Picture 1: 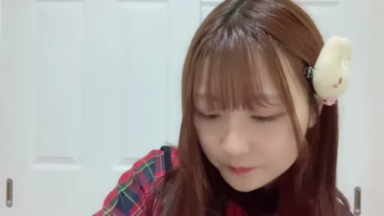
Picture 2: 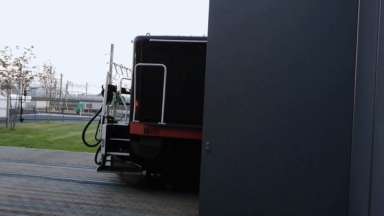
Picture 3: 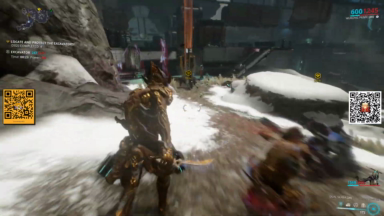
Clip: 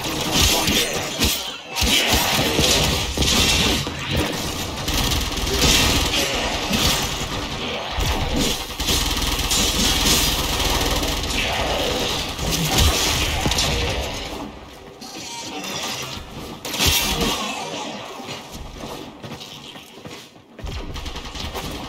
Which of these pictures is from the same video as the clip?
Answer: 3